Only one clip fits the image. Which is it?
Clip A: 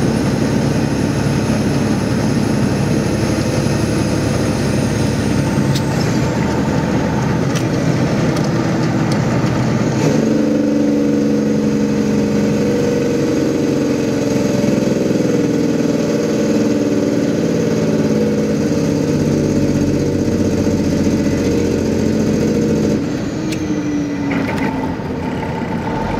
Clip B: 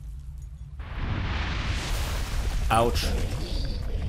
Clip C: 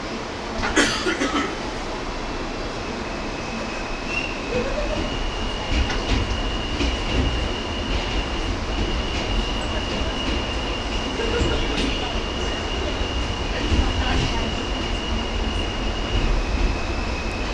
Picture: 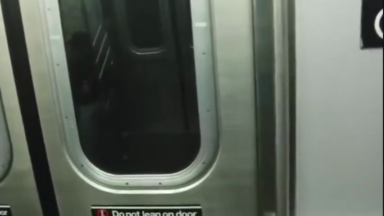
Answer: C